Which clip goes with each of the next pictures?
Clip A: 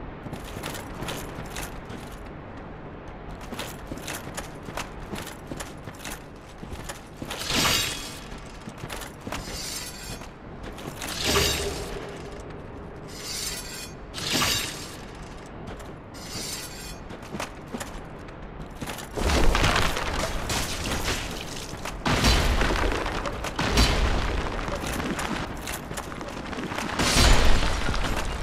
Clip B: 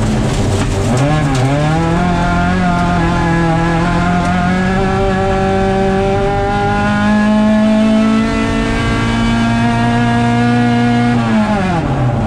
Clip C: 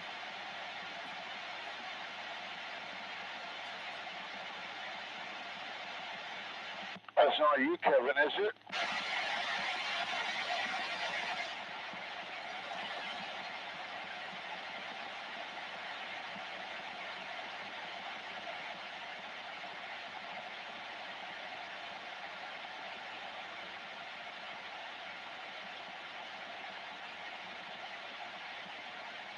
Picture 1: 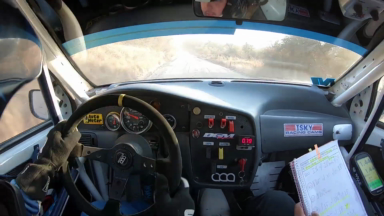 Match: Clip B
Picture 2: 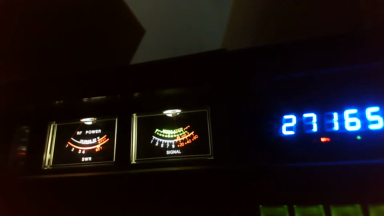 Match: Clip C